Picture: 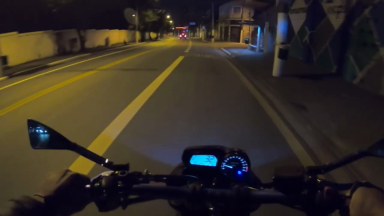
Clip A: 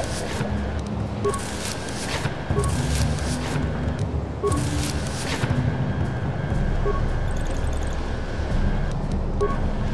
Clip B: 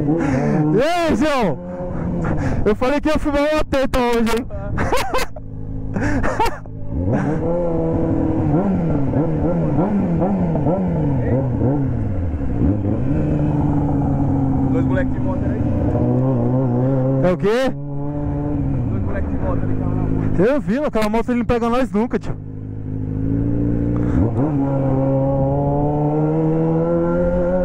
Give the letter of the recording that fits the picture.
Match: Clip B